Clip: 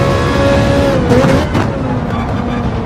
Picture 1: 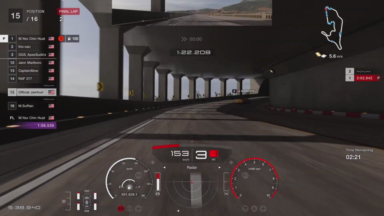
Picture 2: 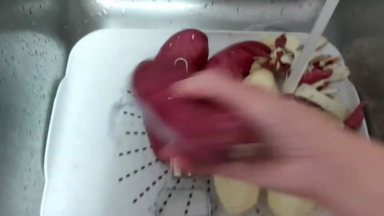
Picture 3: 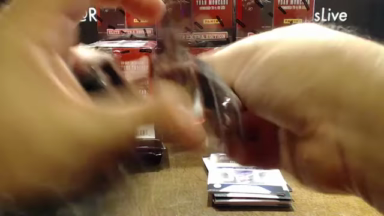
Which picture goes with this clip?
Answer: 1